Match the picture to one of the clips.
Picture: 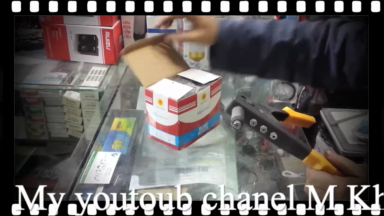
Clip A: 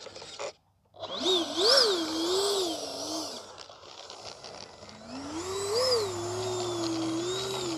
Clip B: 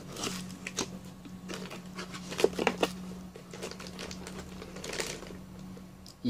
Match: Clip B